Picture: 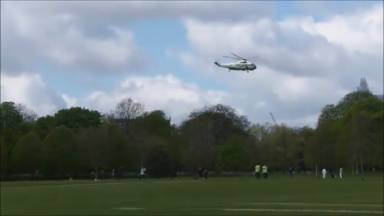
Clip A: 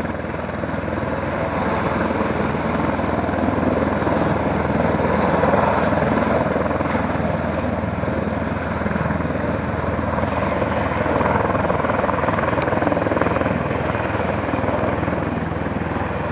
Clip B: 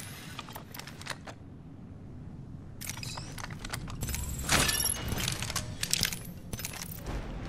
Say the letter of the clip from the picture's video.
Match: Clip A